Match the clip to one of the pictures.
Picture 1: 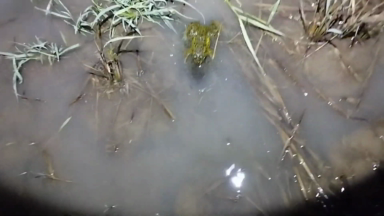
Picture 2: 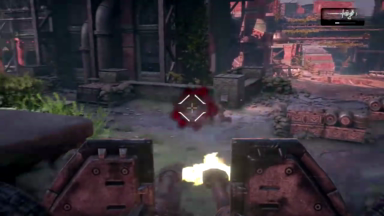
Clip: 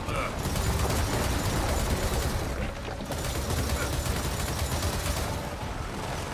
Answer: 2